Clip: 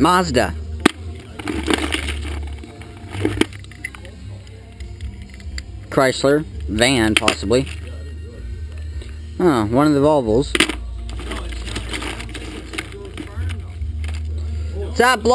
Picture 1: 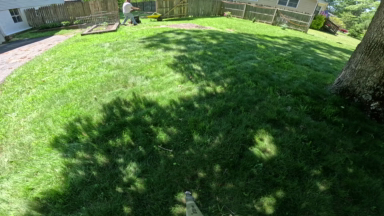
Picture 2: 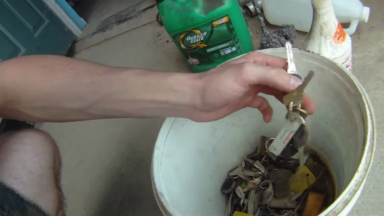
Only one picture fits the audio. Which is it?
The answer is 2